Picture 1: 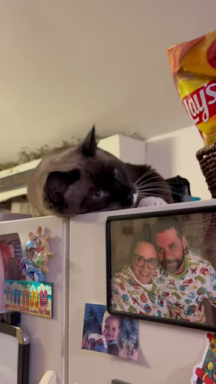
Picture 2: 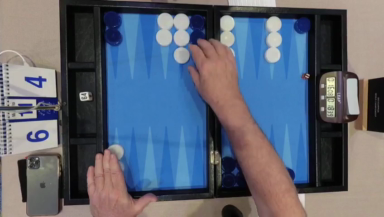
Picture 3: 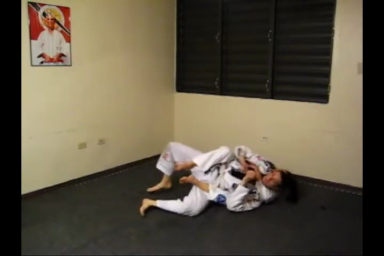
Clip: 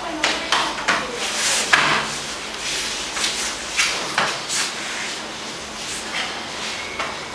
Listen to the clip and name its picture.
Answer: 3